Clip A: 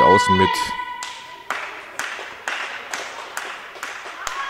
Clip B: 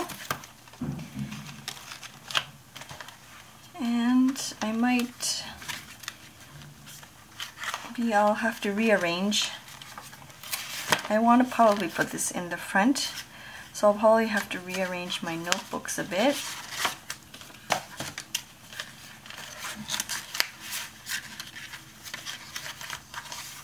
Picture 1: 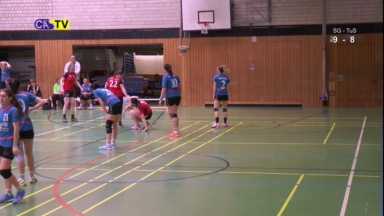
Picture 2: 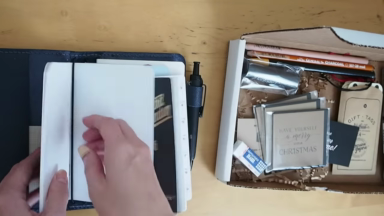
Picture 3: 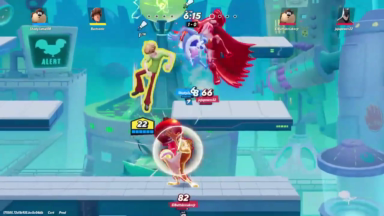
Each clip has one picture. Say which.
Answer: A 1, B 2